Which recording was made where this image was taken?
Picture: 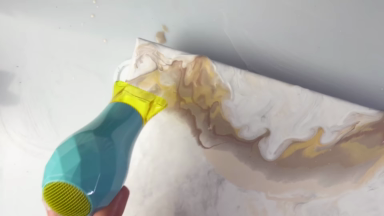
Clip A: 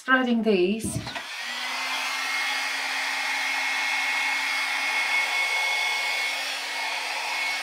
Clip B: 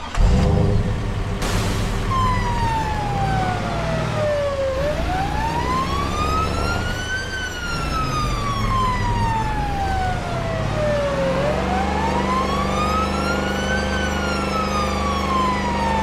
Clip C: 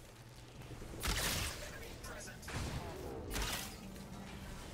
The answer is A